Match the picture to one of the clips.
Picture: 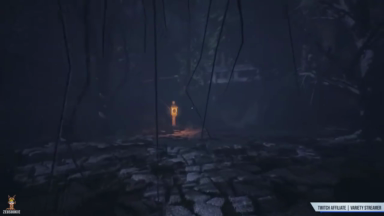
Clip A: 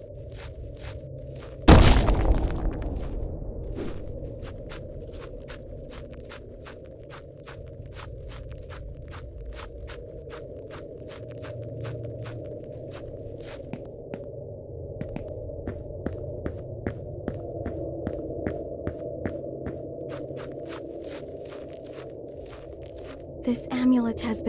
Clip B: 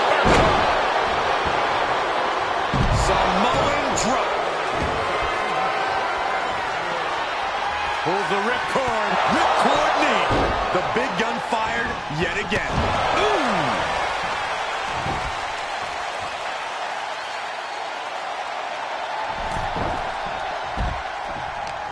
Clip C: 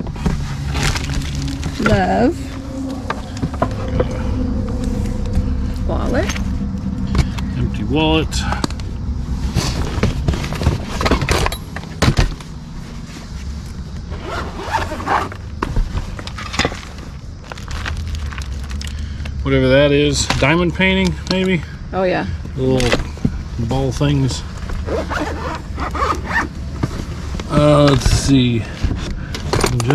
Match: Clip A